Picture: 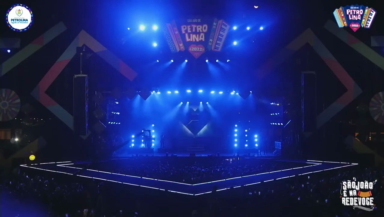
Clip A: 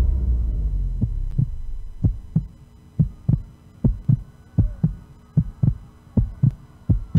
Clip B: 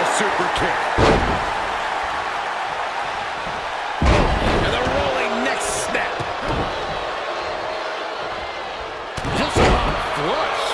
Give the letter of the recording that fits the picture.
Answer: A